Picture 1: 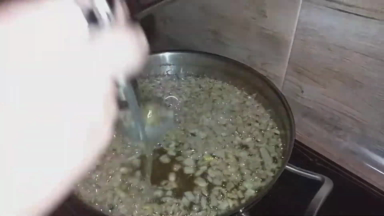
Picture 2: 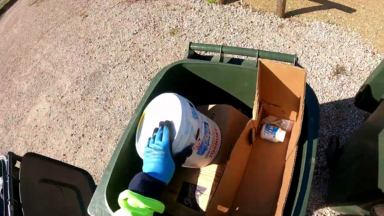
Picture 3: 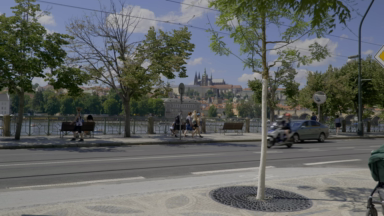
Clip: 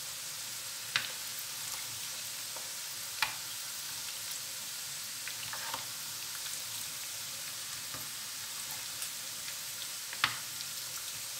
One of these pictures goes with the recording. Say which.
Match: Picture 1